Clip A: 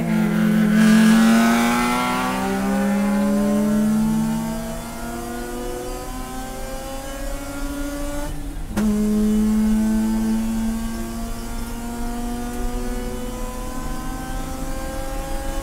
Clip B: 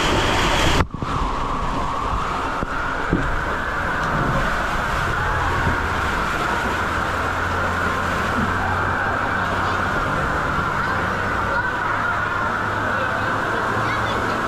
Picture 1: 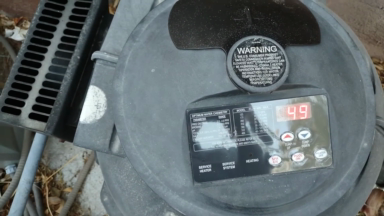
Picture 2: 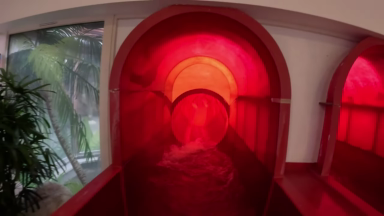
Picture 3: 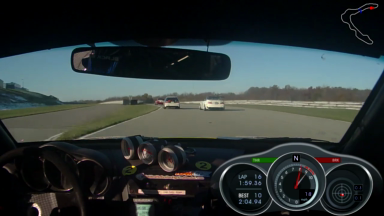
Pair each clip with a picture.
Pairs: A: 3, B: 2